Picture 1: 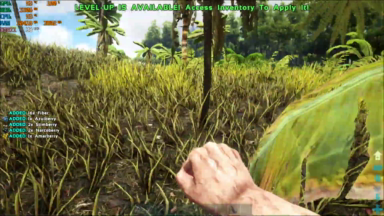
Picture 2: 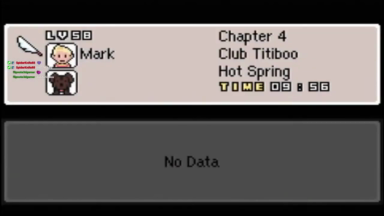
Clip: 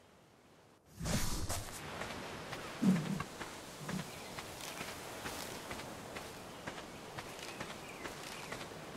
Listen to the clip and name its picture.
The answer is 1